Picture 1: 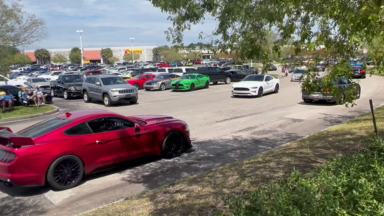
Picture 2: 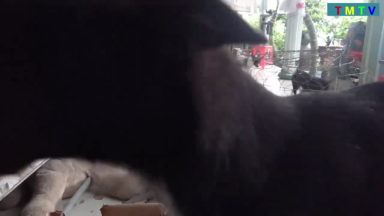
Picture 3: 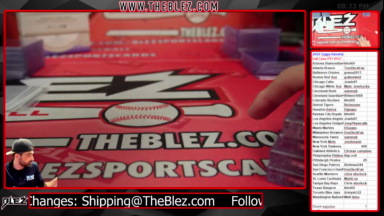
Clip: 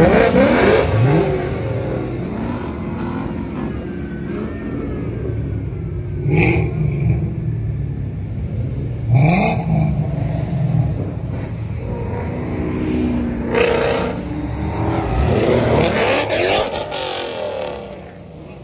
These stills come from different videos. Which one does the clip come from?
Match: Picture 1